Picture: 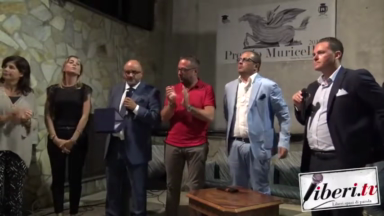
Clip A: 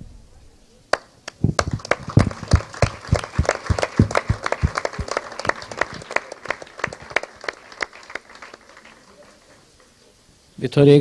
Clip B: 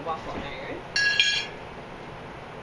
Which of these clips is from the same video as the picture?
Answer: A